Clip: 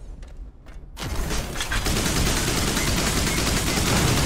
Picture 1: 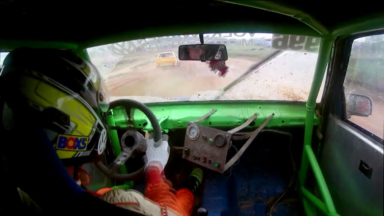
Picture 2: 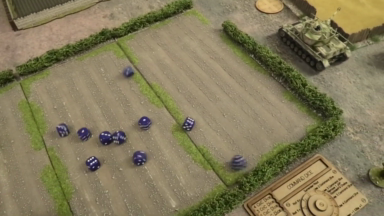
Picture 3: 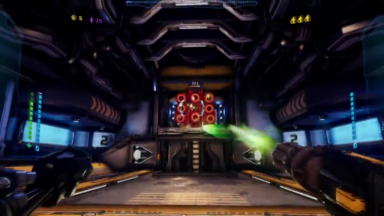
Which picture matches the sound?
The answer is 3